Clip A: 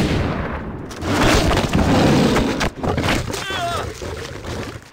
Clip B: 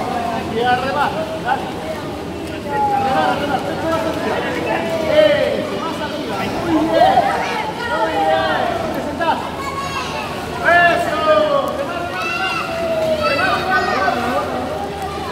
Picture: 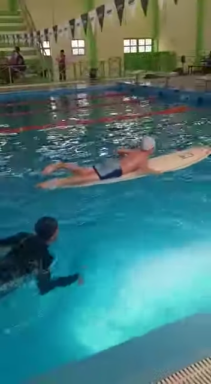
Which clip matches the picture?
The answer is B